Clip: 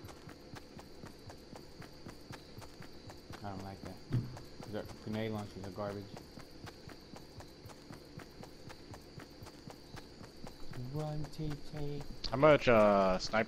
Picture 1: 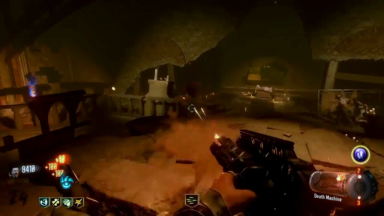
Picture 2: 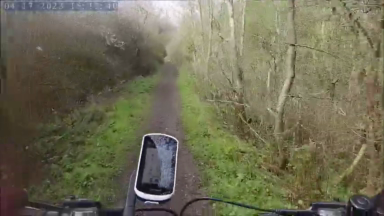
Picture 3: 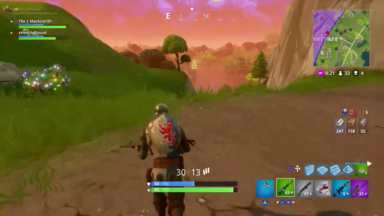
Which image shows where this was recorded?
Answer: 3